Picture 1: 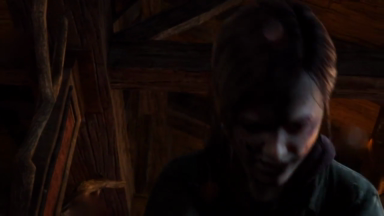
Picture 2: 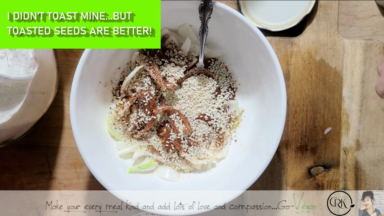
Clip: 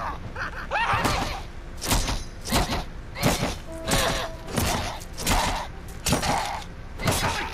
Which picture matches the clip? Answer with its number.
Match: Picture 1